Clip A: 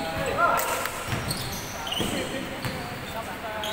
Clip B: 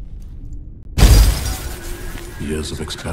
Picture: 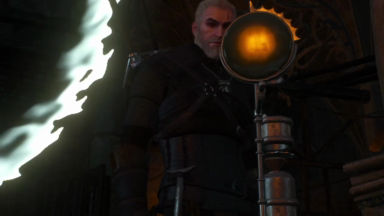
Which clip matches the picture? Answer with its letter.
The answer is B